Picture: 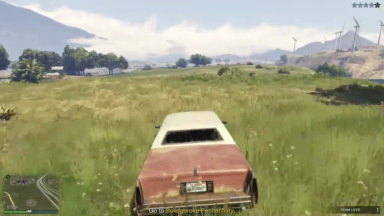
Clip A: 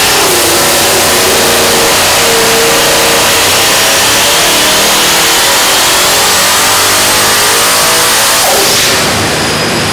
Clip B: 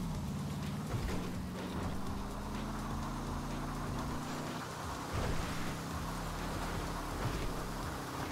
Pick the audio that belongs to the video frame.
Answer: B